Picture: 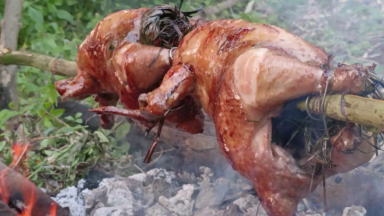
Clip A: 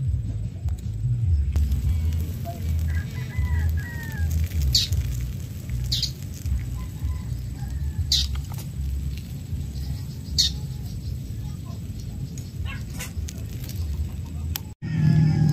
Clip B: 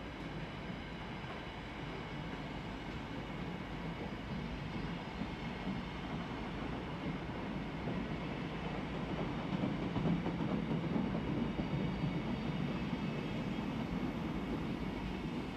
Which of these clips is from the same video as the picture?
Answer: A